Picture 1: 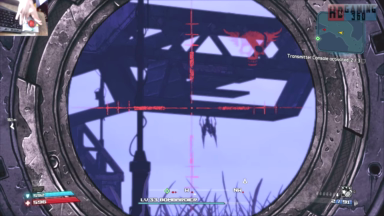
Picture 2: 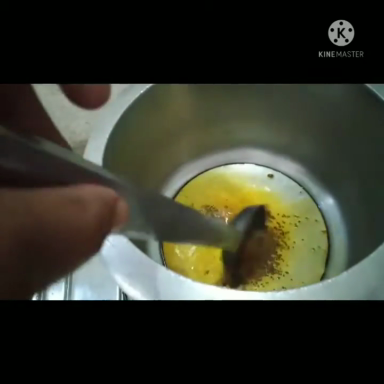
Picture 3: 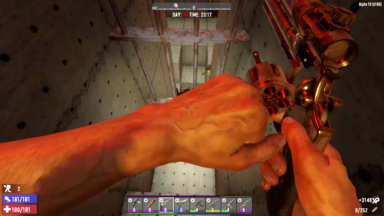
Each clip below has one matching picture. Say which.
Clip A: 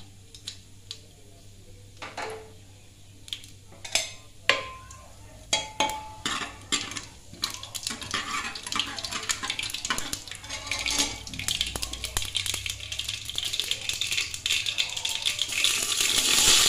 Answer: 2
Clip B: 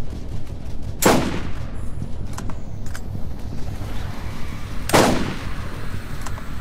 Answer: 1